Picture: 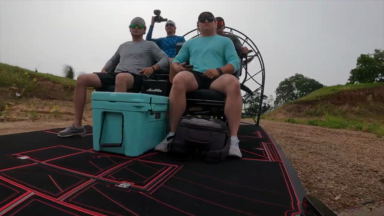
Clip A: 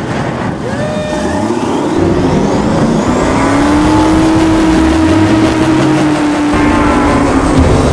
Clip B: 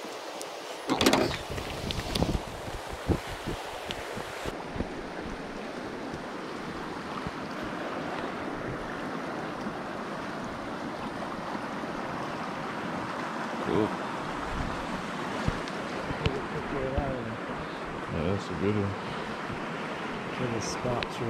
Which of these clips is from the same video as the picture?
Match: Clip A